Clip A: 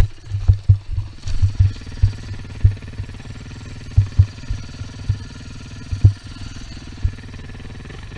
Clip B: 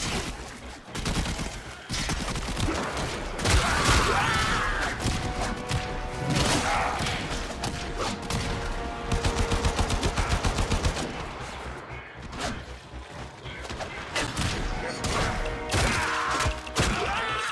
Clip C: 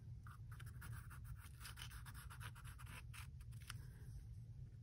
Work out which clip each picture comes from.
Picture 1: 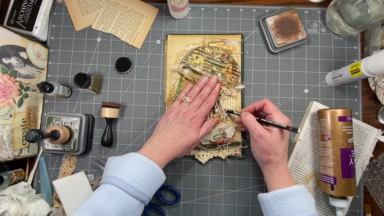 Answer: C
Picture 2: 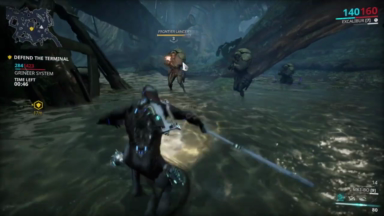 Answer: B